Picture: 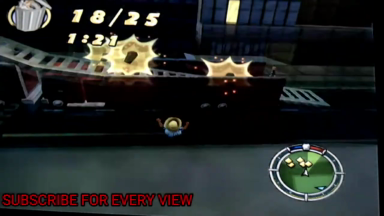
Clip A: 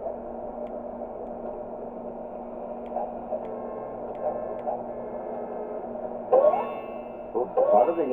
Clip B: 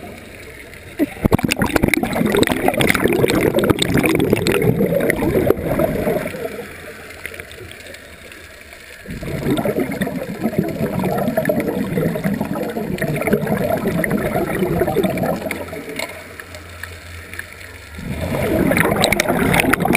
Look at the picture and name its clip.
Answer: A